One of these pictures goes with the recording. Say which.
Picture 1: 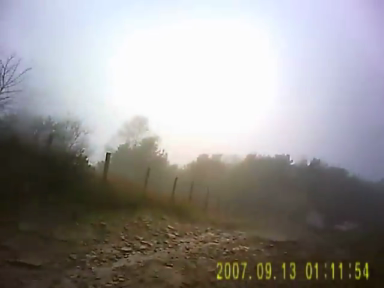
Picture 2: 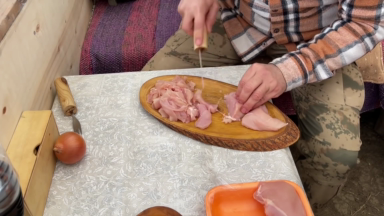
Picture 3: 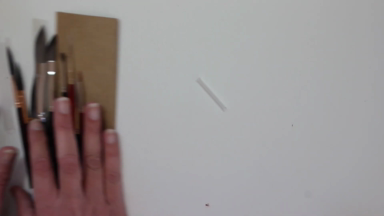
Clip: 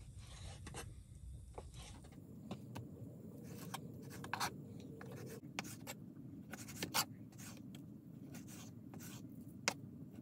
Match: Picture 2